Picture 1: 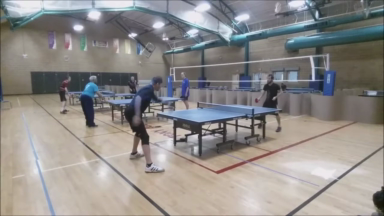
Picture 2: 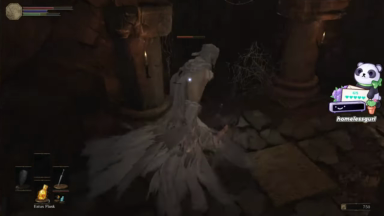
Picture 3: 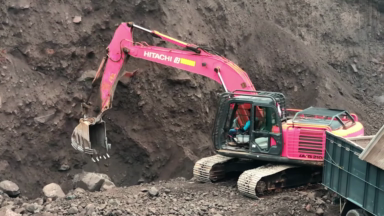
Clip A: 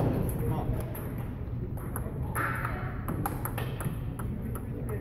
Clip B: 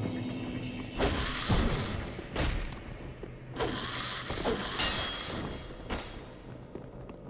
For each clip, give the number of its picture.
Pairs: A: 1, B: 2